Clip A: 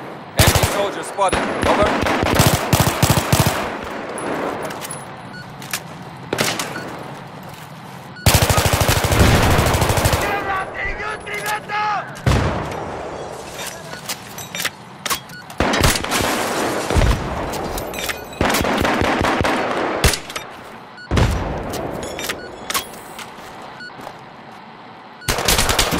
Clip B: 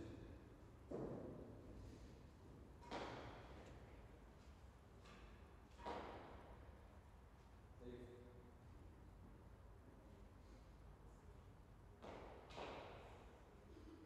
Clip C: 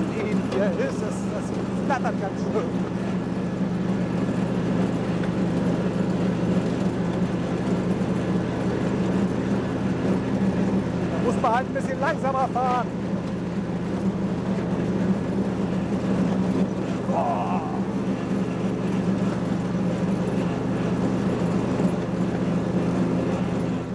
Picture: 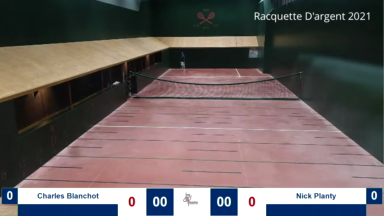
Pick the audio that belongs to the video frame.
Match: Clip B